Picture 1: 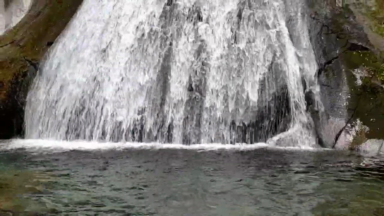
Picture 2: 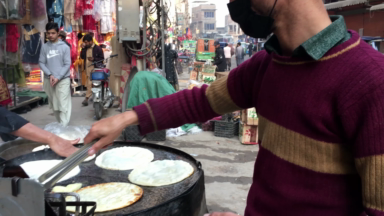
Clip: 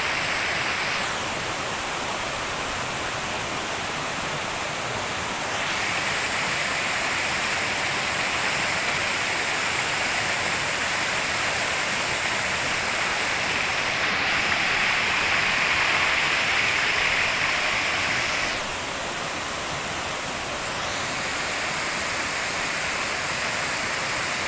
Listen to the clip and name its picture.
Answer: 1